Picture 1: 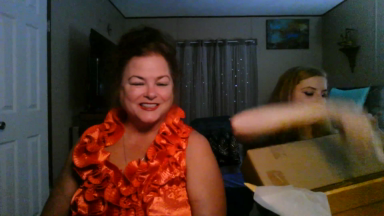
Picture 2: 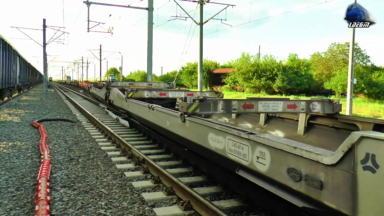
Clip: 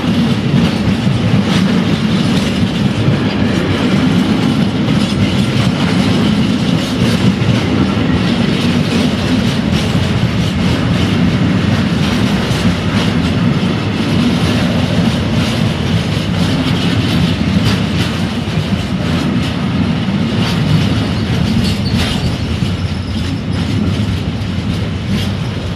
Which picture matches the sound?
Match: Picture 2